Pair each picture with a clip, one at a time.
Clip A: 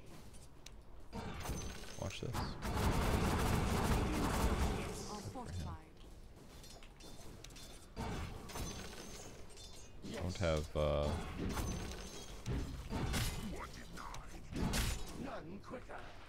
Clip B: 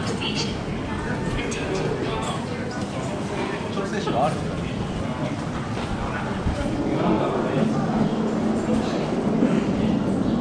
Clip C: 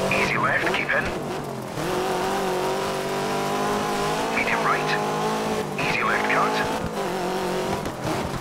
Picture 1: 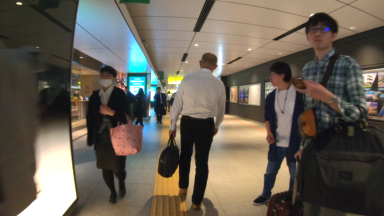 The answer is B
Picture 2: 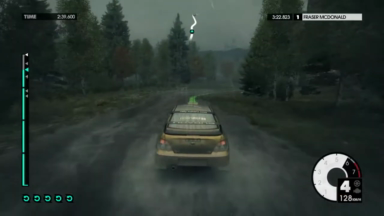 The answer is C